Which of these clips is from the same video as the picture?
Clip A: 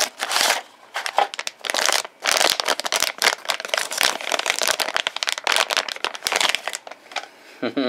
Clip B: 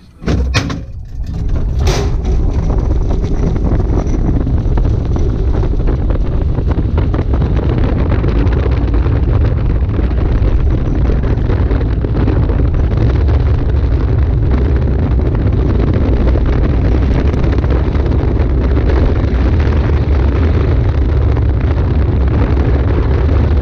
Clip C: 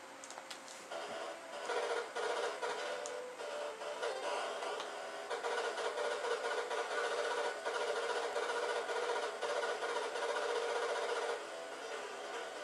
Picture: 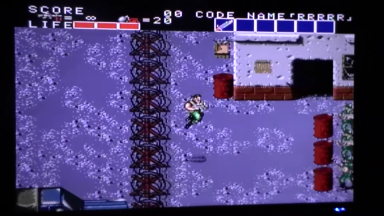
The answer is C